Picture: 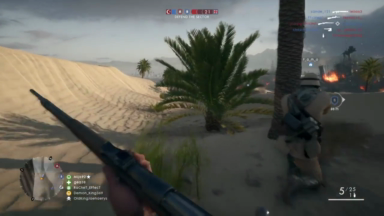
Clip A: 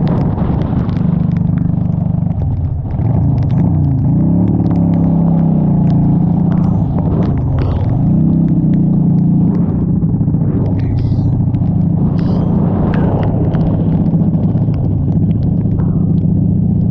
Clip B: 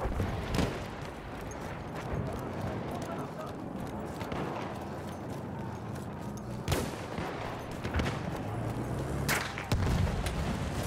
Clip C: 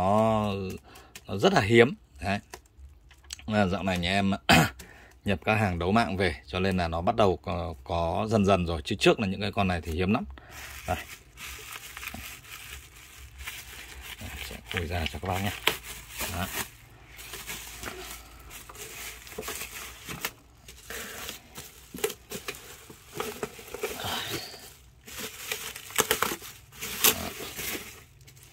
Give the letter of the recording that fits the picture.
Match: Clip B